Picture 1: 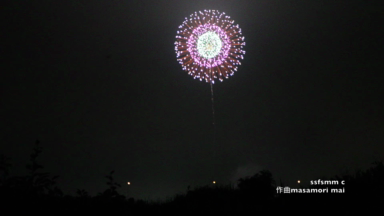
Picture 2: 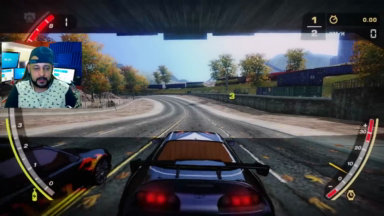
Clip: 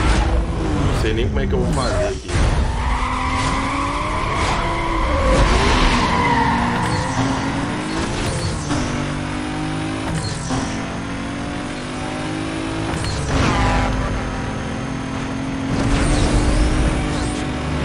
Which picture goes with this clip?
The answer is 2